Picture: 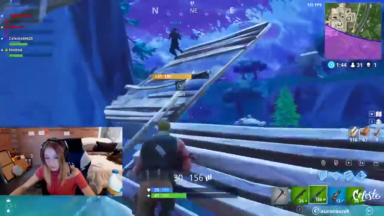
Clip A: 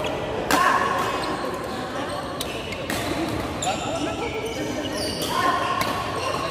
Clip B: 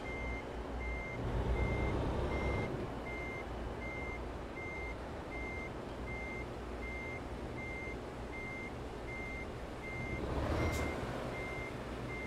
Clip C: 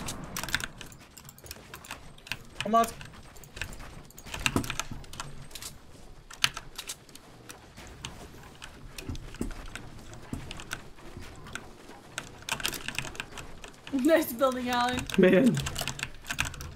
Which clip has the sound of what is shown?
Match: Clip C